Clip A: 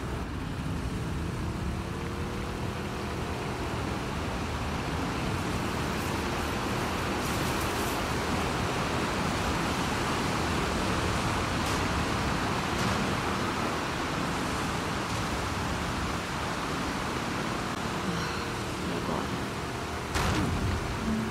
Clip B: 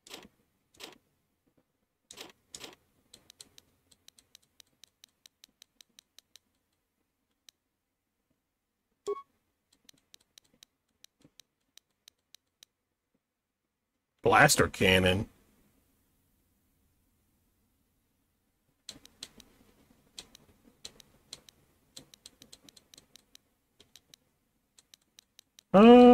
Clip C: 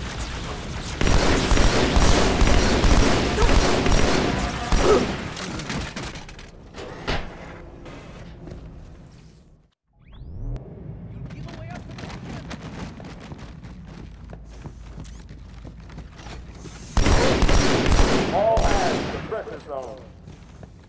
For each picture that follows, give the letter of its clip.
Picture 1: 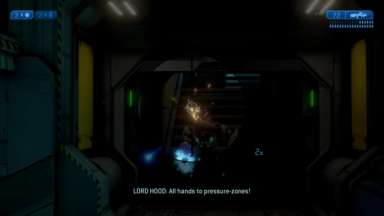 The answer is C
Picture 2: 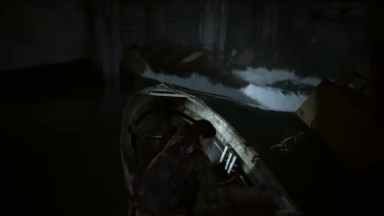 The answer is A